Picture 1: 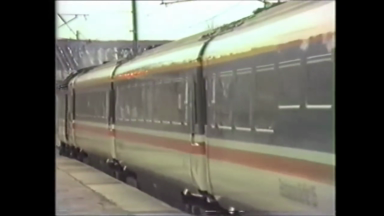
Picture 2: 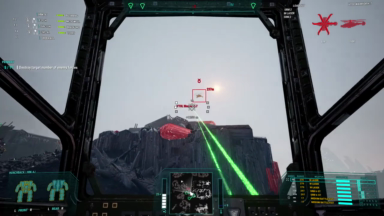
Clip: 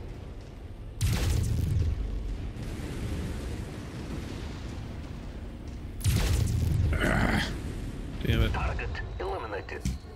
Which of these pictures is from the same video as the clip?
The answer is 2